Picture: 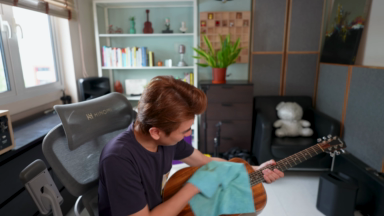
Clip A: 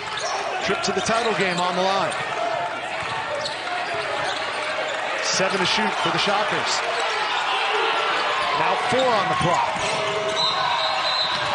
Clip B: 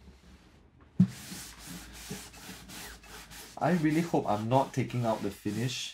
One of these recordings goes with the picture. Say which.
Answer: B